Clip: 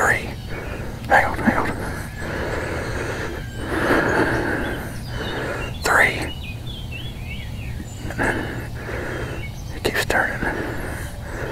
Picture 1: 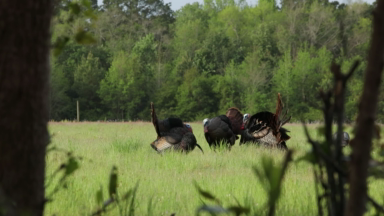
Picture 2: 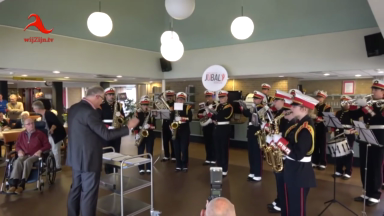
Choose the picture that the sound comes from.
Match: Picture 1